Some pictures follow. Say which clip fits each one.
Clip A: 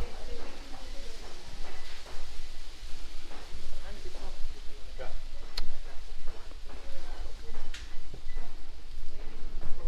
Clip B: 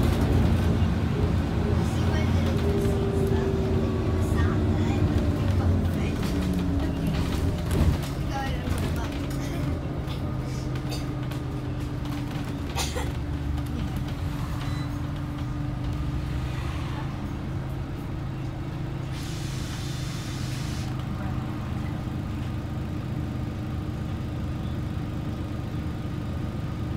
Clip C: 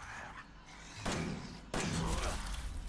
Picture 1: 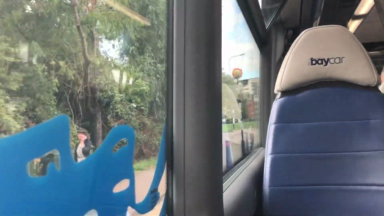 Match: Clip B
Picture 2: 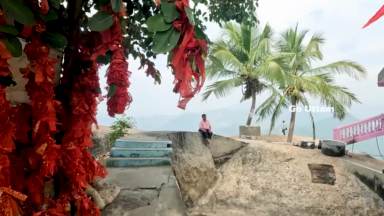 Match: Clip A